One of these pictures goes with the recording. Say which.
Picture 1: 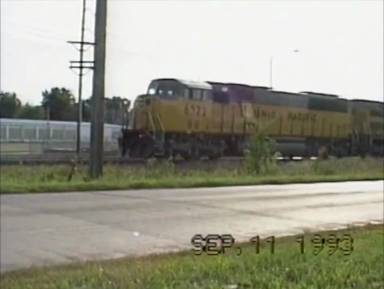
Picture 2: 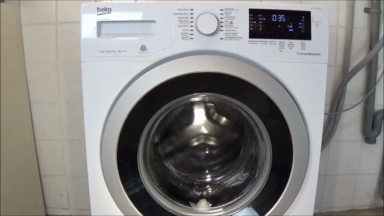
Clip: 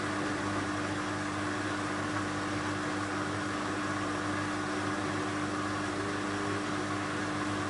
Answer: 2